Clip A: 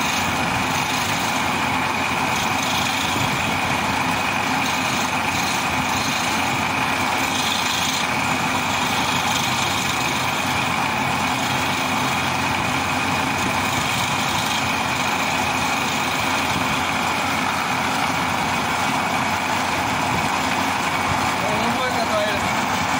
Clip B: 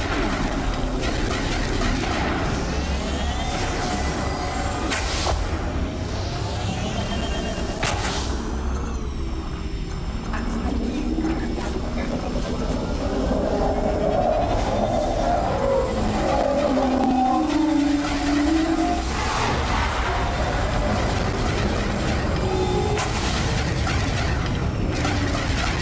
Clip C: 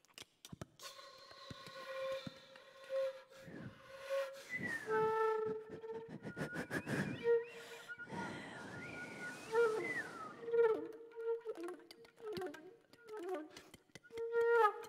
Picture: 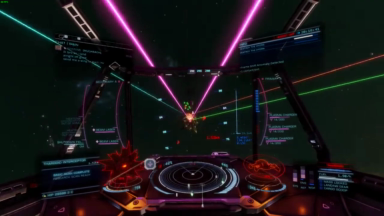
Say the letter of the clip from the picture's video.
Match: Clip B